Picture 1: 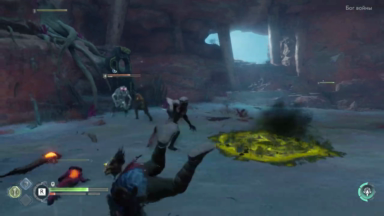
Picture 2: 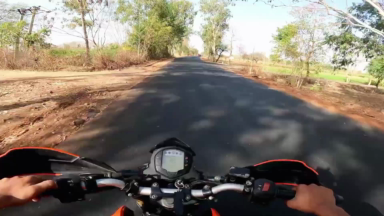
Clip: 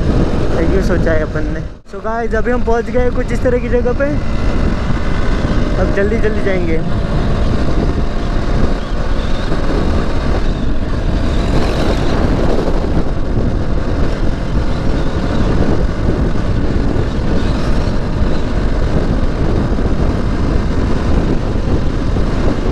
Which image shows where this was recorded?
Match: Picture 2